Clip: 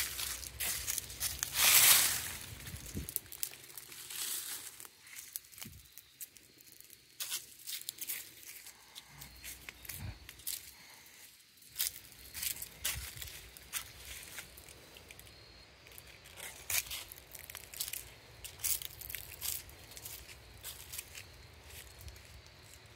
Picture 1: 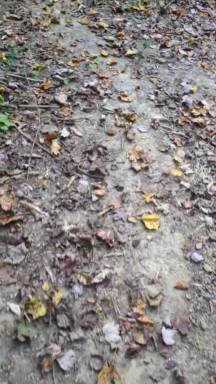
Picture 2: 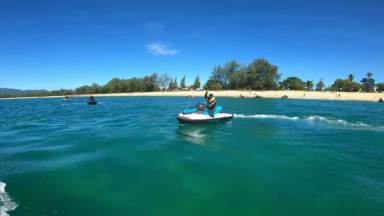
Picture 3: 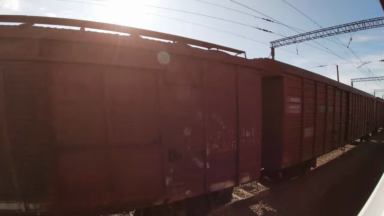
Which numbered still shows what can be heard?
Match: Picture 1